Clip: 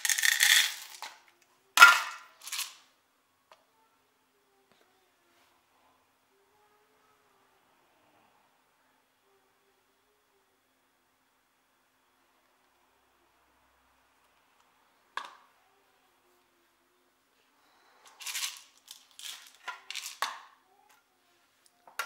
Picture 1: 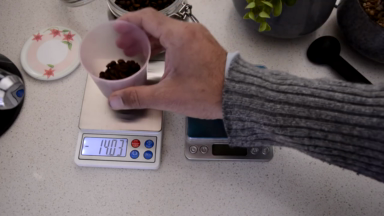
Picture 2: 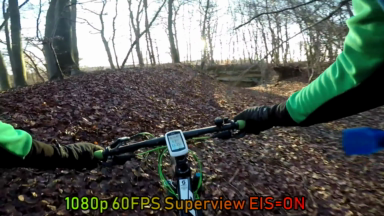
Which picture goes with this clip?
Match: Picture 1